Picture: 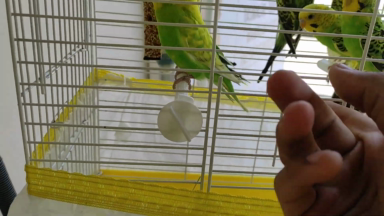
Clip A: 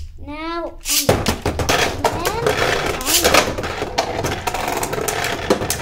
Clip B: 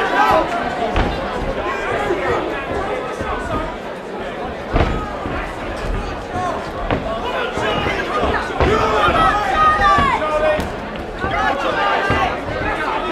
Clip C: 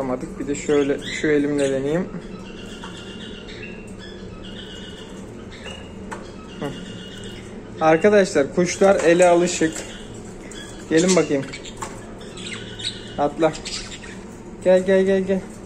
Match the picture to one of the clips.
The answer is C